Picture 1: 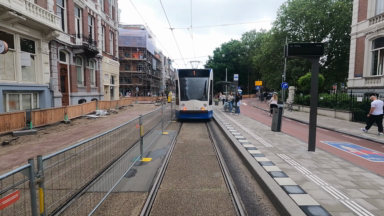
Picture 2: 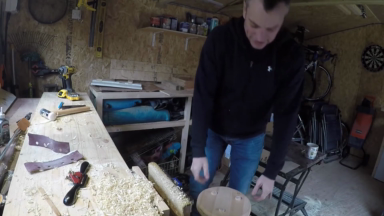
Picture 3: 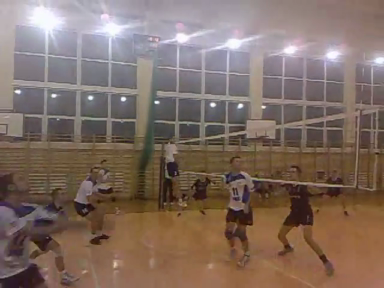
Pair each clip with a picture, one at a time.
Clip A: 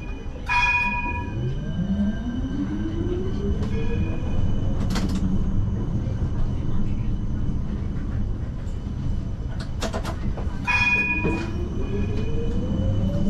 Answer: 1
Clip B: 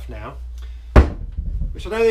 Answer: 2